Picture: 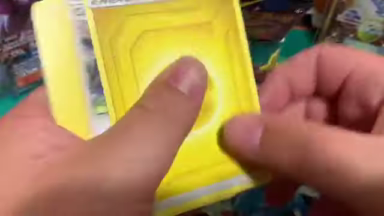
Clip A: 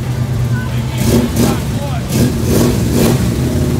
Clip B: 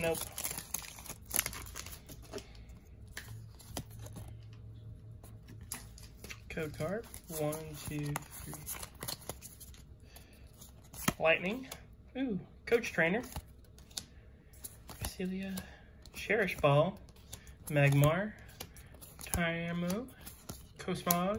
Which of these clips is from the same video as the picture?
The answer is B